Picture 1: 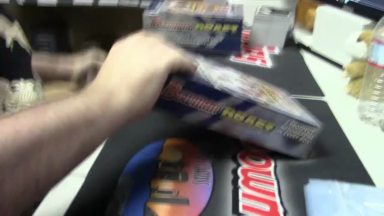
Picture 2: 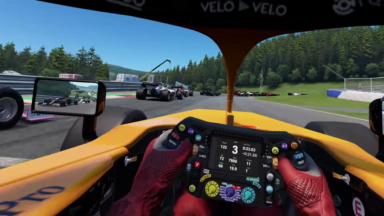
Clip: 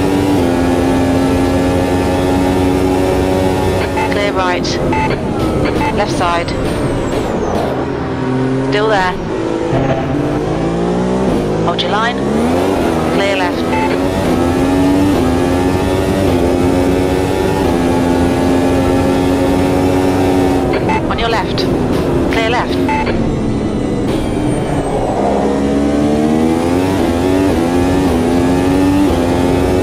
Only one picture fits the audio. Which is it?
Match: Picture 2